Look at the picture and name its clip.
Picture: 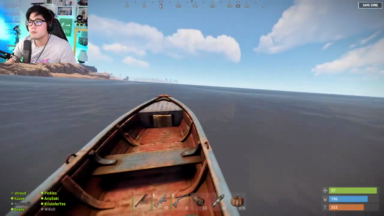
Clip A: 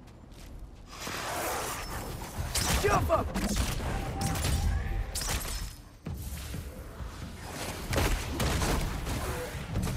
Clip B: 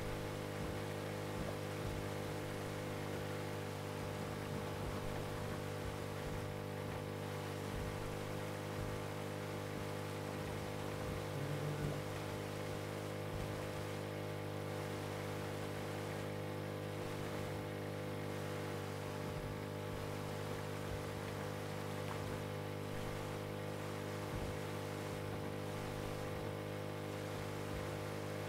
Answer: B